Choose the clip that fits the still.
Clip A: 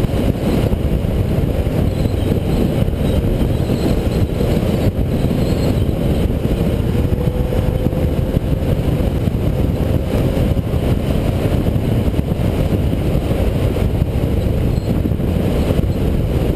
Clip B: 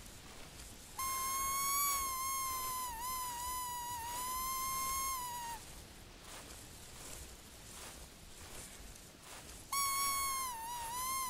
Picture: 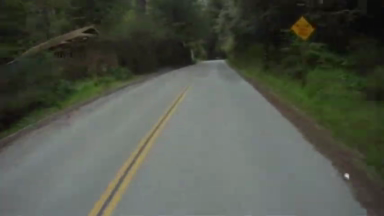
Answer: A